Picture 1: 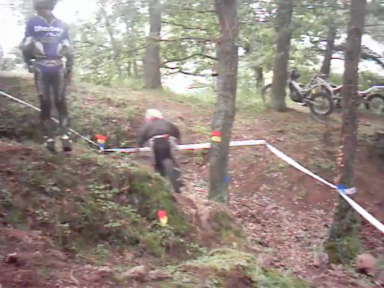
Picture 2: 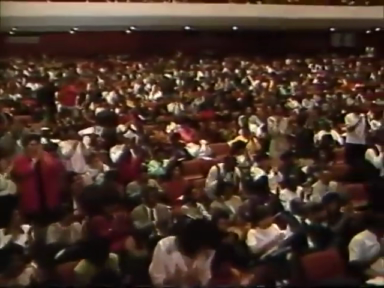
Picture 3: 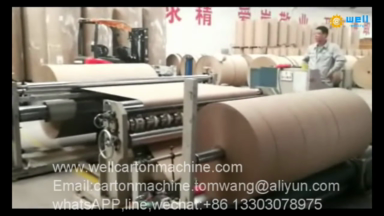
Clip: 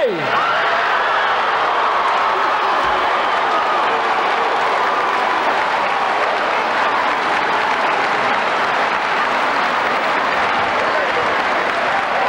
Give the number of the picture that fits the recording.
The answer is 2